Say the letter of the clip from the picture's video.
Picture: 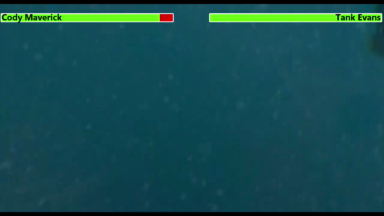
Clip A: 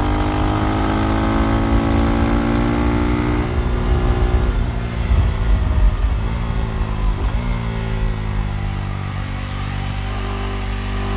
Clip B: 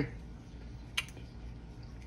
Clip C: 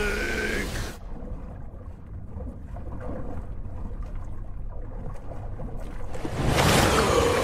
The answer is C